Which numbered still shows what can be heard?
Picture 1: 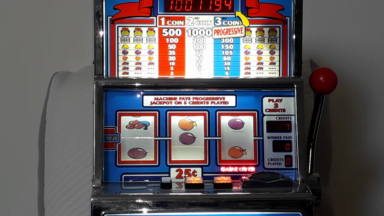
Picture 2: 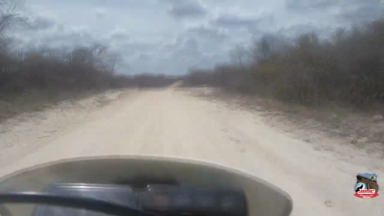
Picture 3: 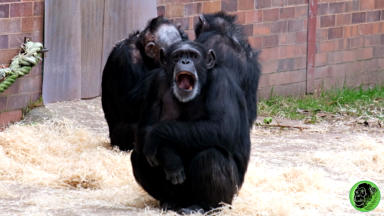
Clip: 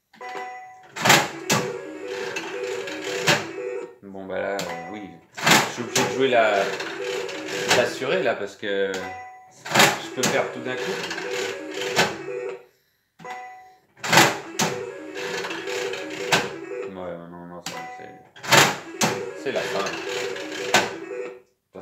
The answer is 1